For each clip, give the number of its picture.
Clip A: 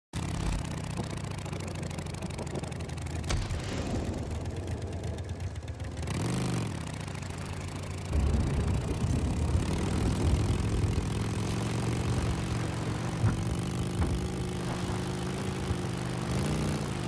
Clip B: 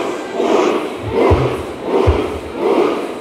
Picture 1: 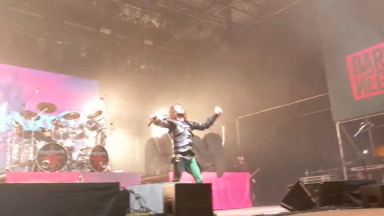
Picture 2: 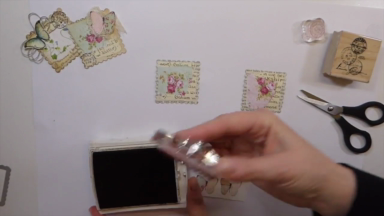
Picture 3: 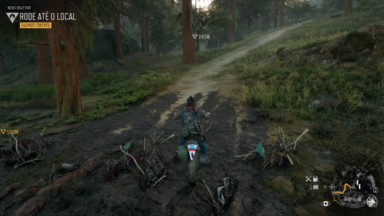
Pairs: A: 3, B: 1